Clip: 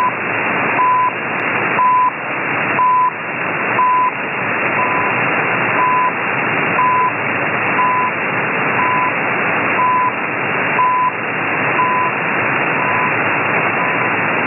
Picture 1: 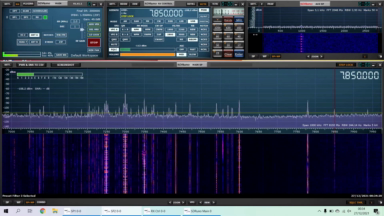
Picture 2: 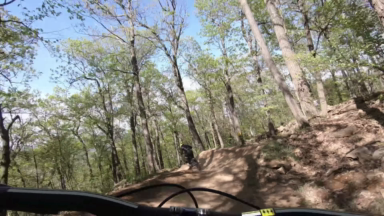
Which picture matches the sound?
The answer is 1